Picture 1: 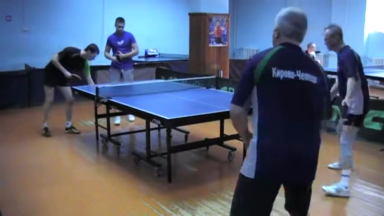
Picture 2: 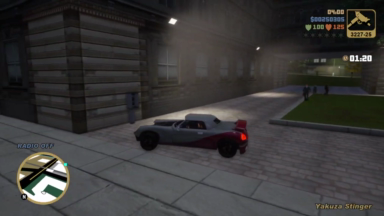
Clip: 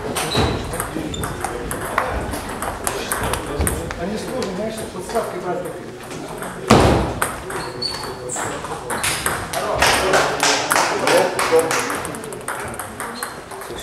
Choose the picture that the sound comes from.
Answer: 1